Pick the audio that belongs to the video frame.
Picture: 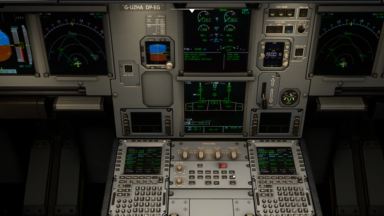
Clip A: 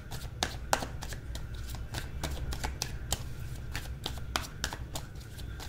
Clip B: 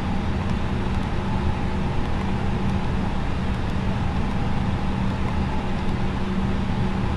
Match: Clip B